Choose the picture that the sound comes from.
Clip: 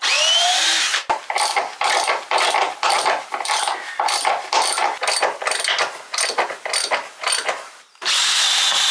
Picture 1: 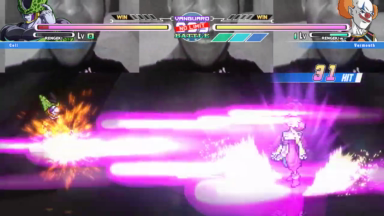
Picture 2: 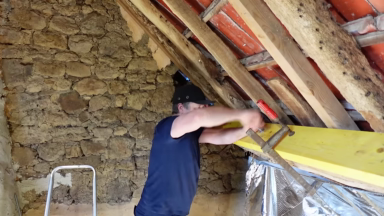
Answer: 2